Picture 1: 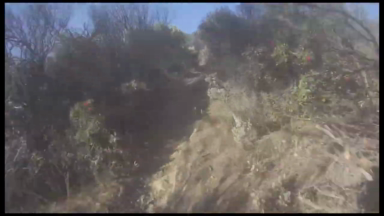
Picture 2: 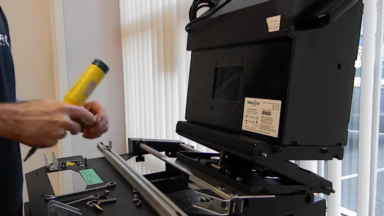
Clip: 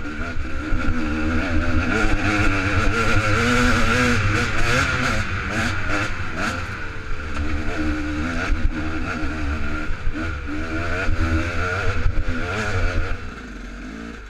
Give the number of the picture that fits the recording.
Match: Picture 1